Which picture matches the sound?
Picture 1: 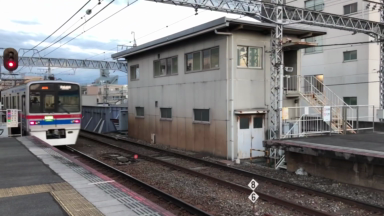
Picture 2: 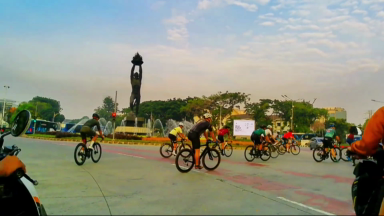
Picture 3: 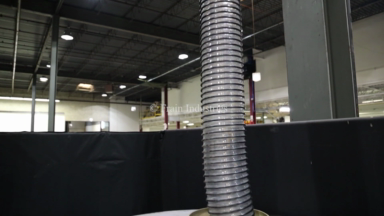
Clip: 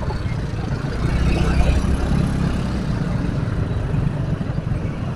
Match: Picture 2